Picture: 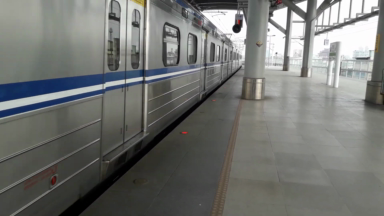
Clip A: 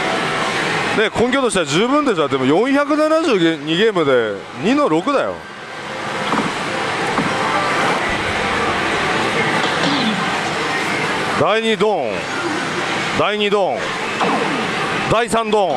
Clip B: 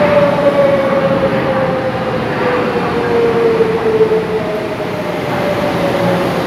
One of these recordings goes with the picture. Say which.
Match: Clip B